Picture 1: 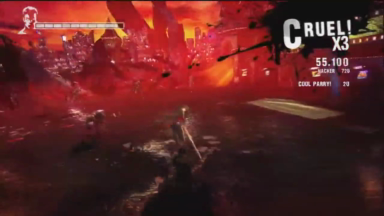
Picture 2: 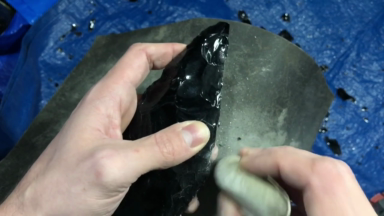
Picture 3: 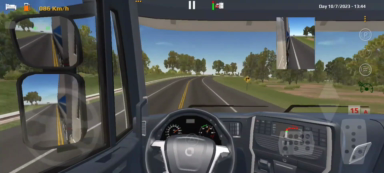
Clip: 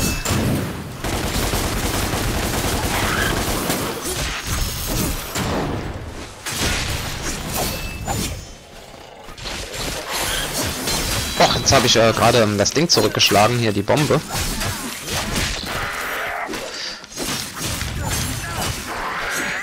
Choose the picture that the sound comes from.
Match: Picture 1